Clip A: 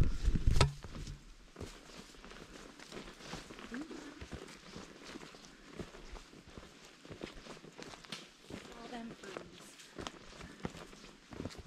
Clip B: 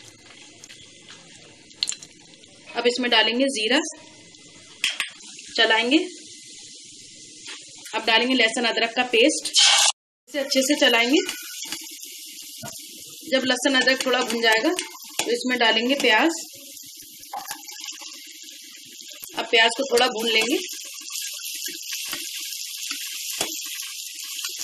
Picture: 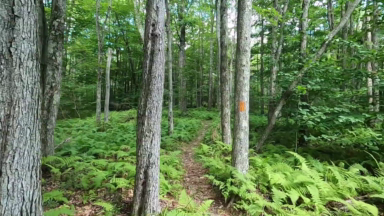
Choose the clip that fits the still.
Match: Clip A